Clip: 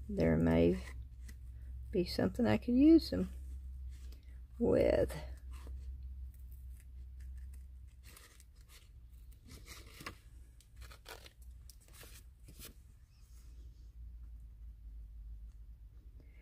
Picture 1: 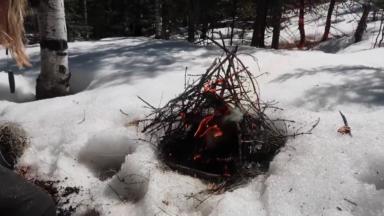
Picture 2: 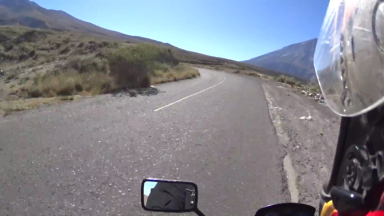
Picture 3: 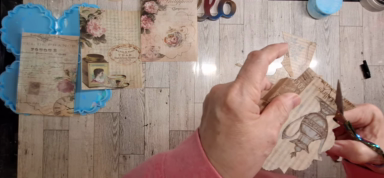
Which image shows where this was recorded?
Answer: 3